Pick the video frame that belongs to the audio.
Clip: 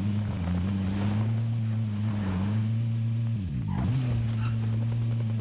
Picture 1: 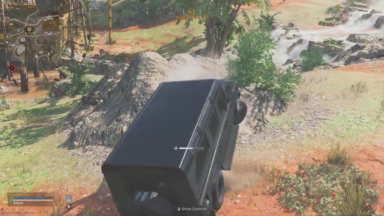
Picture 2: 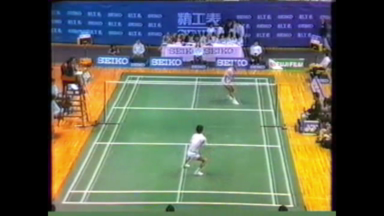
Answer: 1